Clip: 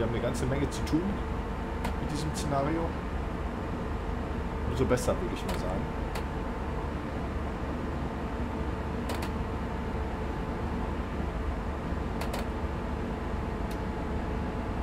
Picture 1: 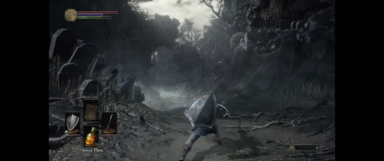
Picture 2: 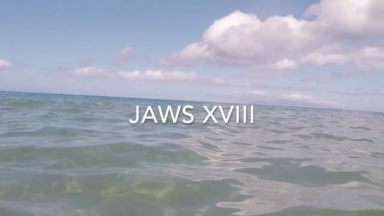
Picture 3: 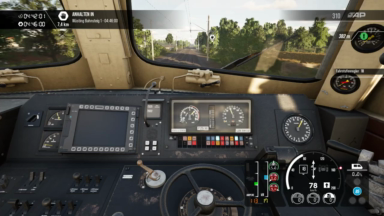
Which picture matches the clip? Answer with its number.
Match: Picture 3